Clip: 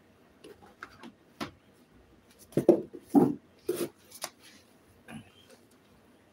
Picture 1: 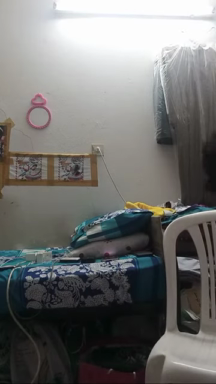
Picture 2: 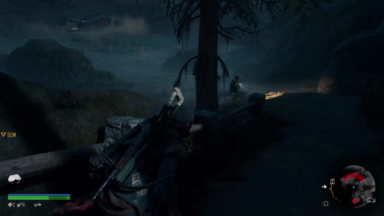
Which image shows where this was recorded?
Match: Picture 1